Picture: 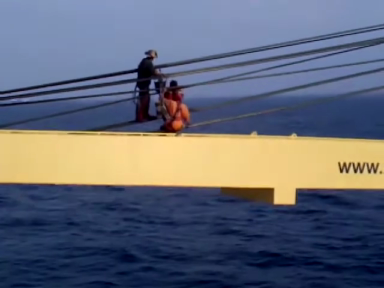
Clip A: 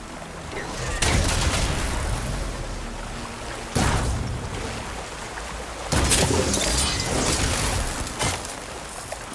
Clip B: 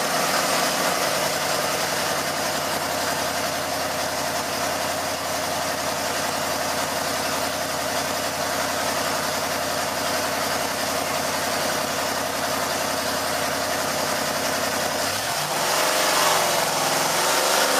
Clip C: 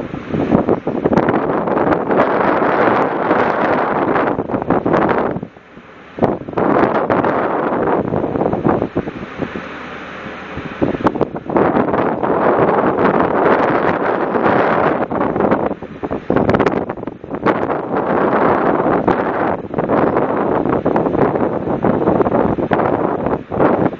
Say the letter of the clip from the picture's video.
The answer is C